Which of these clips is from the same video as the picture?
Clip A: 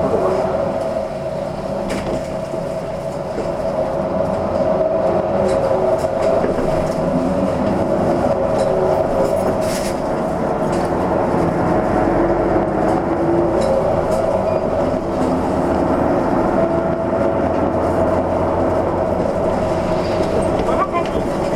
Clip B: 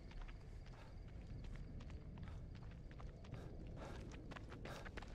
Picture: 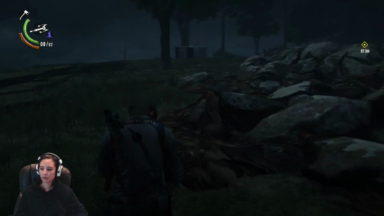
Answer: B